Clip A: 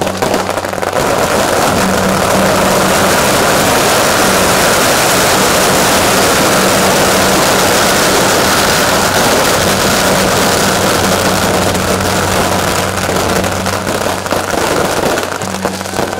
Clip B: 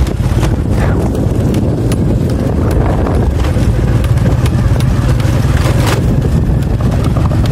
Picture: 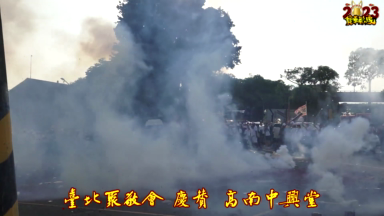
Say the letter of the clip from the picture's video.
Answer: A